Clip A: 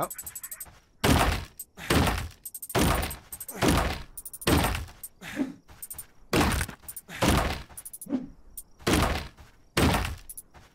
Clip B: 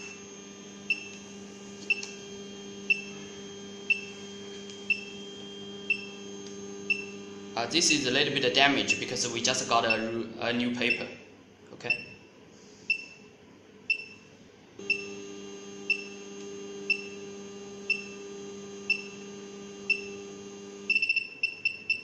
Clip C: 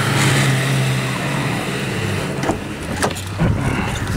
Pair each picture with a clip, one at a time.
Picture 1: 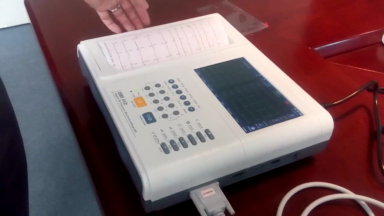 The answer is B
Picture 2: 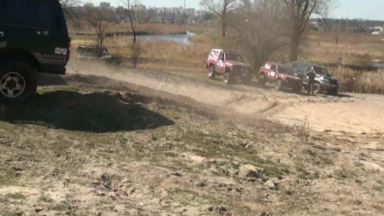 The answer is C